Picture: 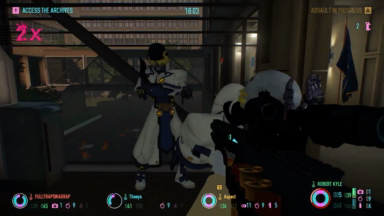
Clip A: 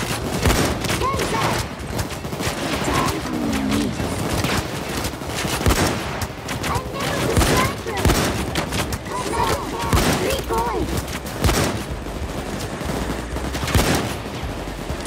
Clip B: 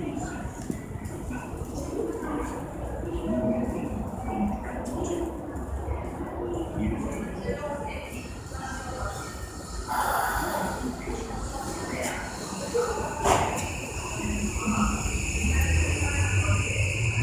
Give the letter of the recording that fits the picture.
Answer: A